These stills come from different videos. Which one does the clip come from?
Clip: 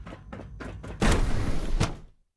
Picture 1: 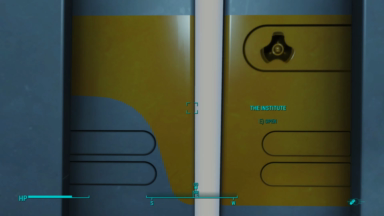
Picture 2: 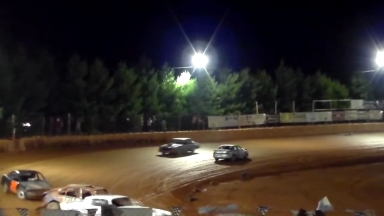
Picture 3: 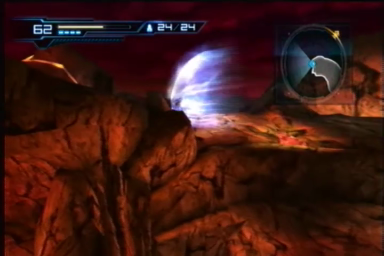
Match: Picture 1